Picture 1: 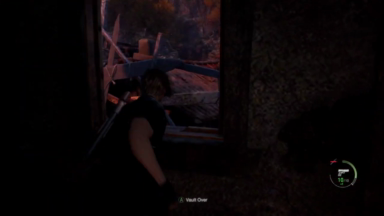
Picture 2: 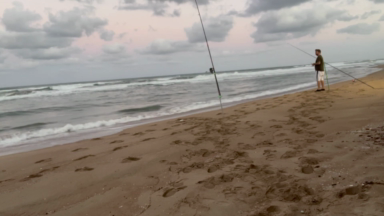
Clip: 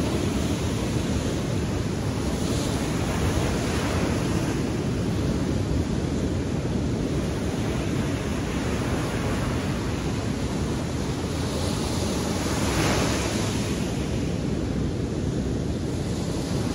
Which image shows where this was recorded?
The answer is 2